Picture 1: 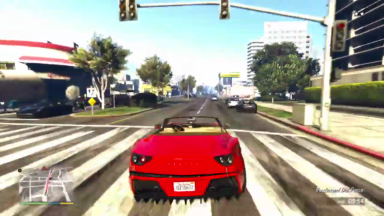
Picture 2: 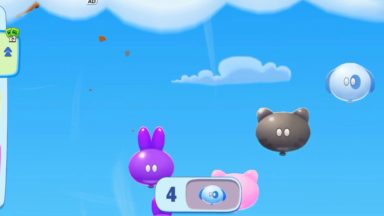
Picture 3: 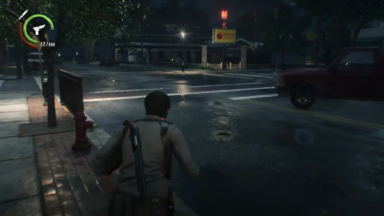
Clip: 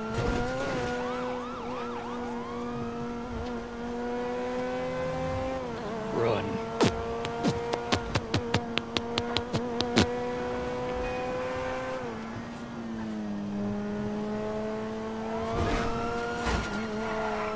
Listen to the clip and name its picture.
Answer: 1